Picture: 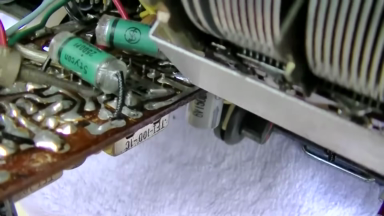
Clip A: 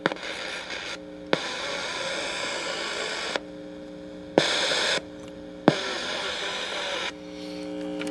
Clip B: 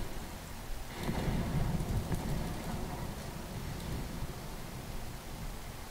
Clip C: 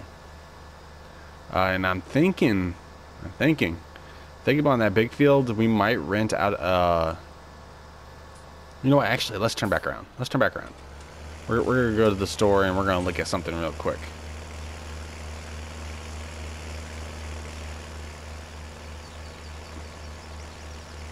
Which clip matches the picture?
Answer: A